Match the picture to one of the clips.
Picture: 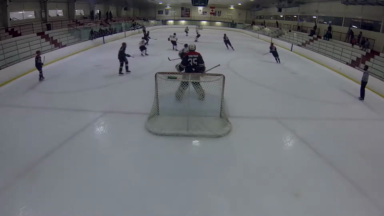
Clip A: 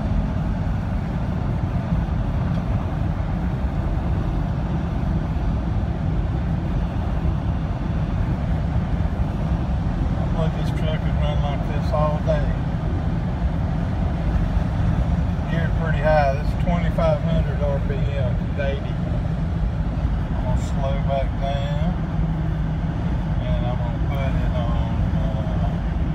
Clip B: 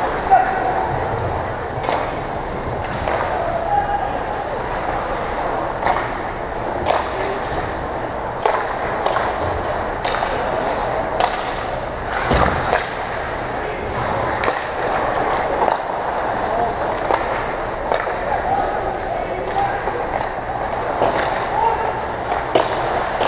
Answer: B